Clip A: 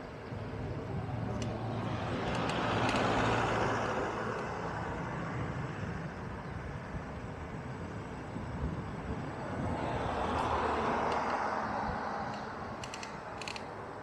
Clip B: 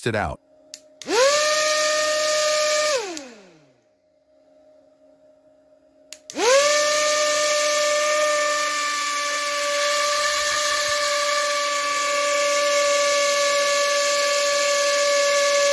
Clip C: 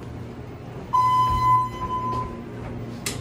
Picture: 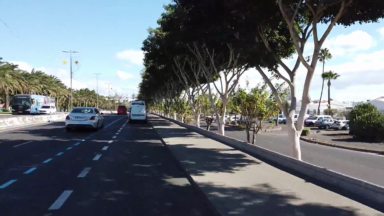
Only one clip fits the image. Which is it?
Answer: A